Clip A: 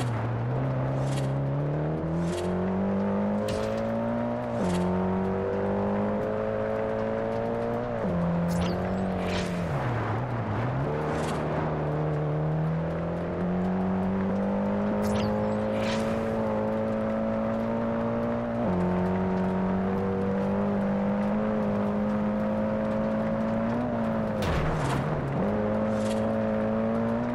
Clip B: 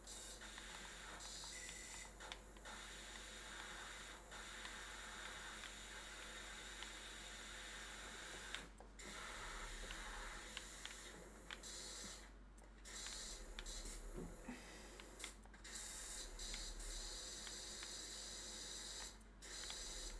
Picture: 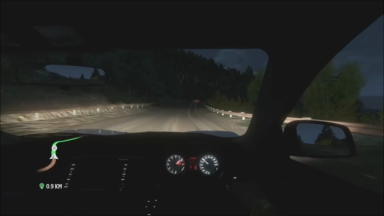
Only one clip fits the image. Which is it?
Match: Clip A